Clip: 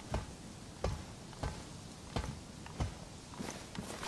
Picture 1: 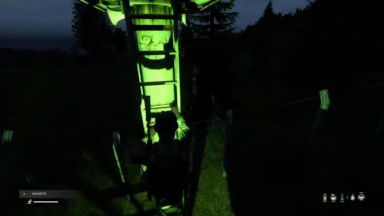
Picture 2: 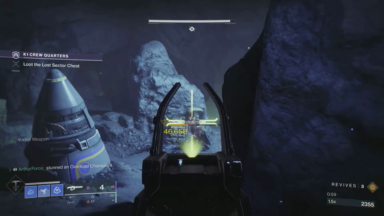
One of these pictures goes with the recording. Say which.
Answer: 1